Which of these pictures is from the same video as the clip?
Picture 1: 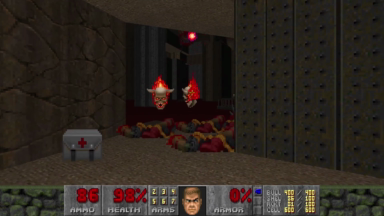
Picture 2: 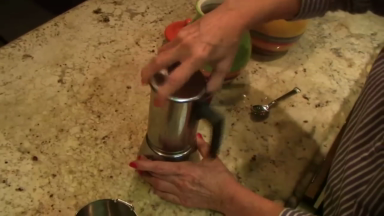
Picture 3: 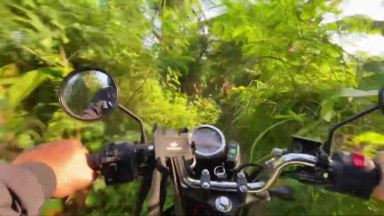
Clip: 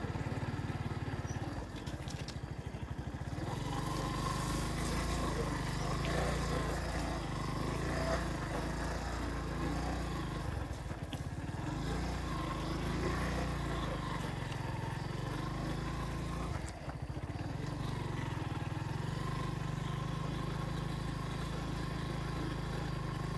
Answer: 3